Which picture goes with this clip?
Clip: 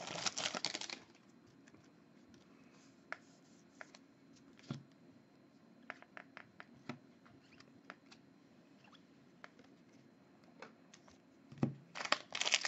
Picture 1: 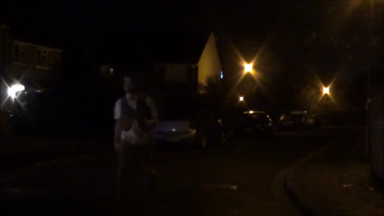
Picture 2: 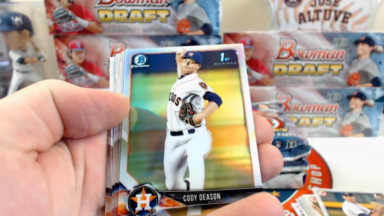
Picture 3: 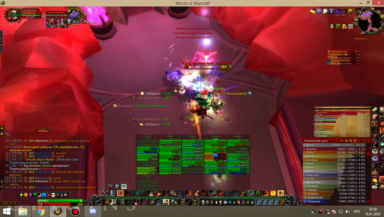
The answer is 2